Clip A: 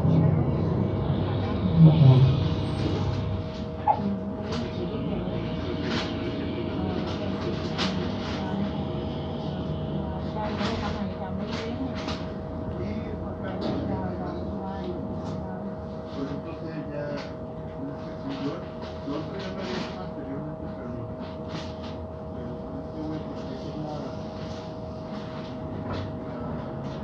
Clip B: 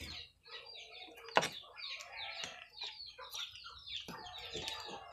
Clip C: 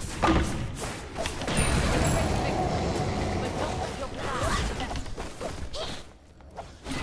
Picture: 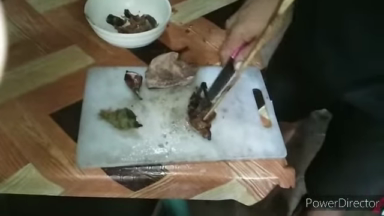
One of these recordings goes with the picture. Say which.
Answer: B